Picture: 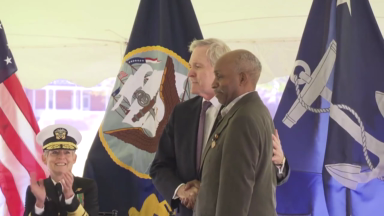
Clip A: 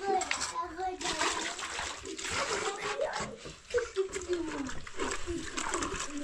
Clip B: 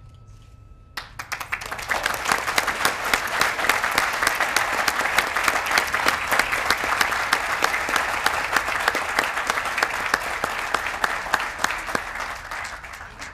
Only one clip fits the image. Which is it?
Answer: B